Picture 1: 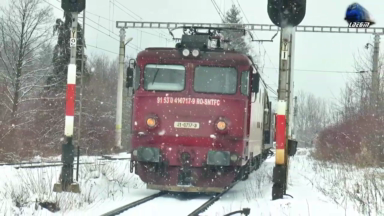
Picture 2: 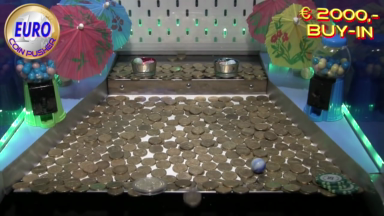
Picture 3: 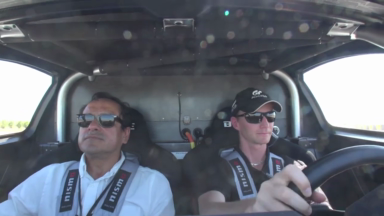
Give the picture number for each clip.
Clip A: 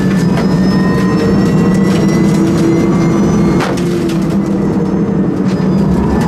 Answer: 3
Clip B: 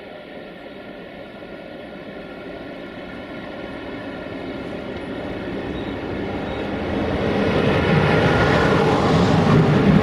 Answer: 1